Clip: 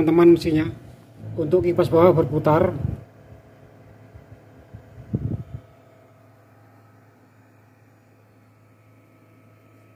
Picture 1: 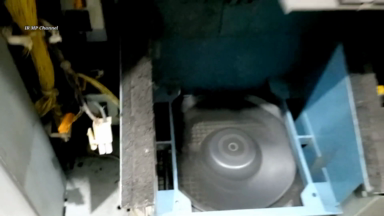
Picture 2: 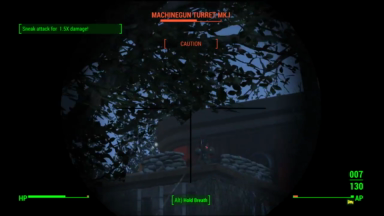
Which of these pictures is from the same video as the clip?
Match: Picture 1